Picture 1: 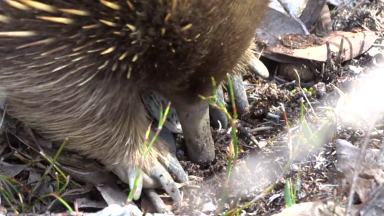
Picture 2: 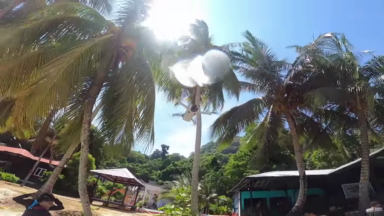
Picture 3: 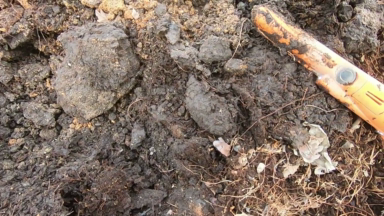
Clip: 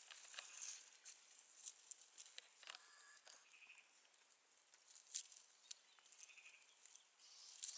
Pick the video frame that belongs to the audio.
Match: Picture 1